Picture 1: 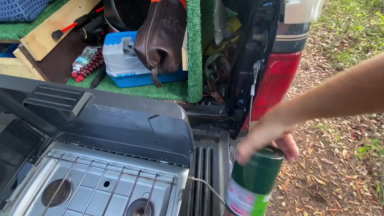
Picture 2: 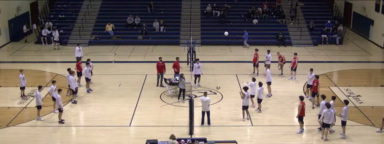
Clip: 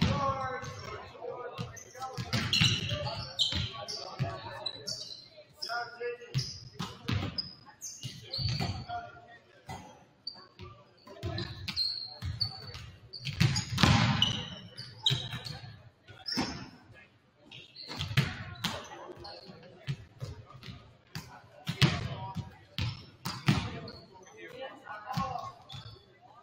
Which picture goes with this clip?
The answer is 2